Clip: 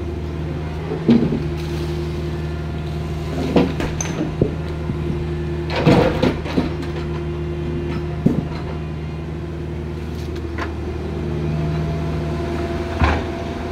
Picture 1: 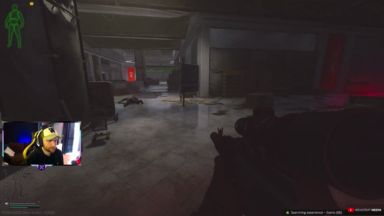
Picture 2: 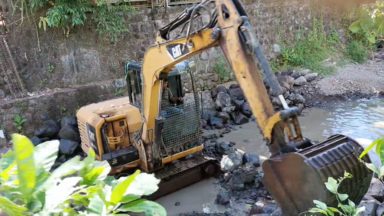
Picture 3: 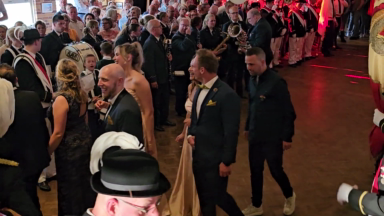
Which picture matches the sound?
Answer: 2